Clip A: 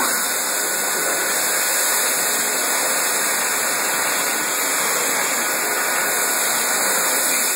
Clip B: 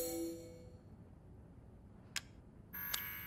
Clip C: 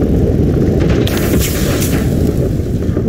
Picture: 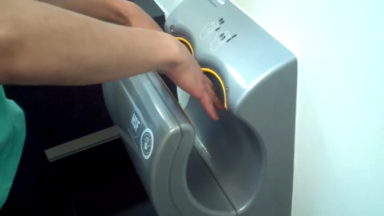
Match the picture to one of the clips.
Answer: A